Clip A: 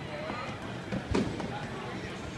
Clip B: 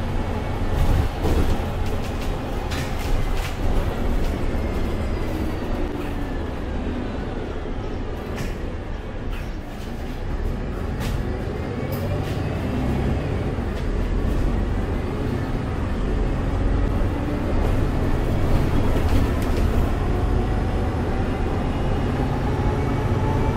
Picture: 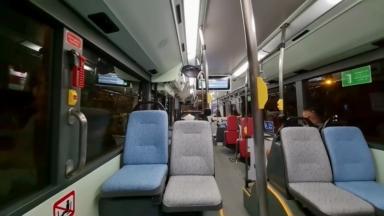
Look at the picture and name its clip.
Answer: B